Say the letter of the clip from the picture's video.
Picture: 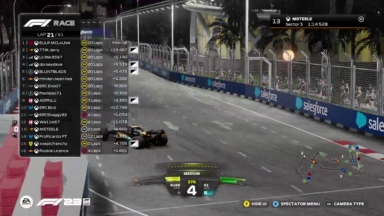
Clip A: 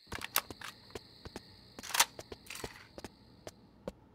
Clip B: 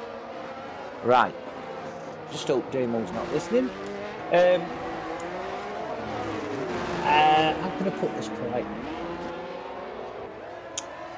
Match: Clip B